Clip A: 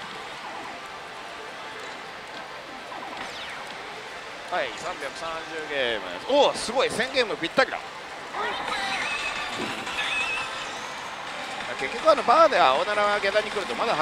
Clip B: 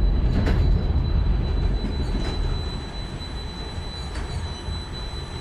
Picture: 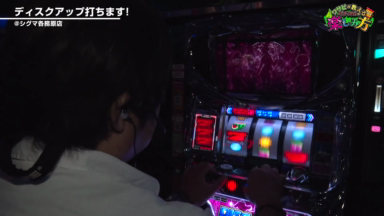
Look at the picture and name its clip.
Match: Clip A